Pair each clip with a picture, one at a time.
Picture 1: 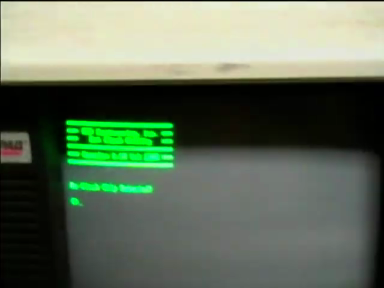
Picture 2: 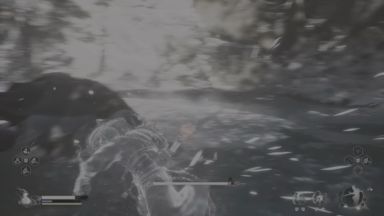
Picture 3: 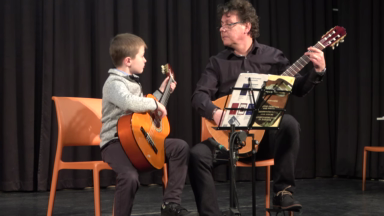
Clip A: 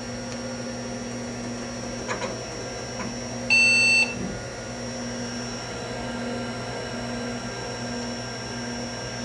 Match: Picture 1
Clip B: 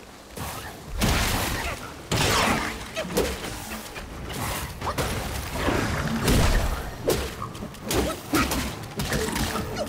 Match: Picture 2